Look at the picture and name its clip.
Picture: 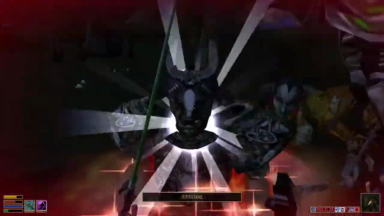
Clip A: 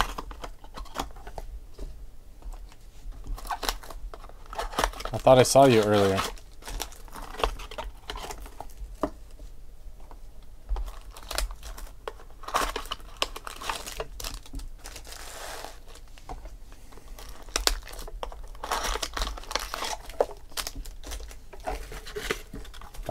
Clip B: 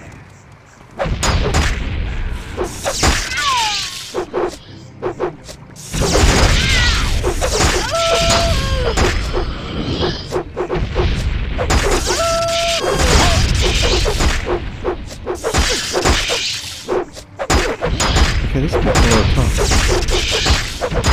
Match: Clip B